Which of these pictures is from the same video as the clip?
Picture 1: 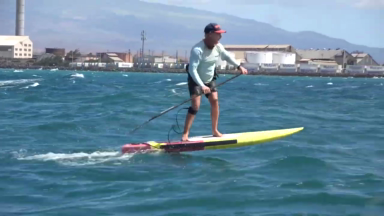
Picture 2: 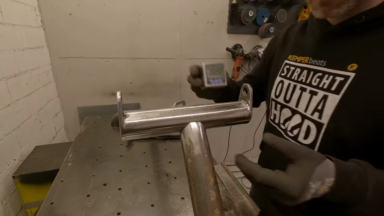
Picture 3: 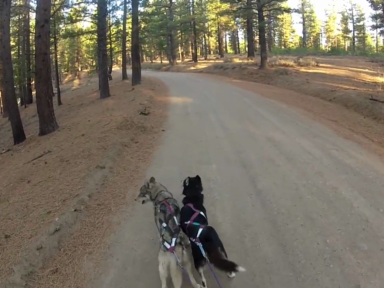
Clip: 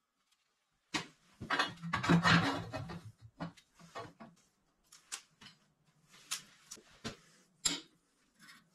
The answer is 2